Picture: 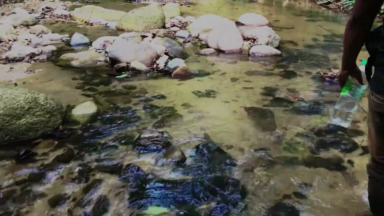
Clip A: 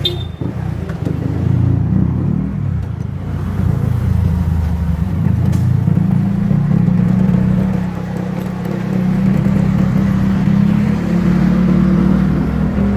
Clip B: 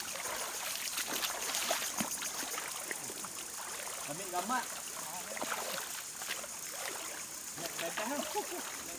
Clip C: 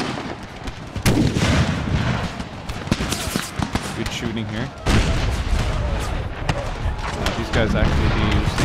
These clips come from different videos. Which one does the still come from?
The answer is B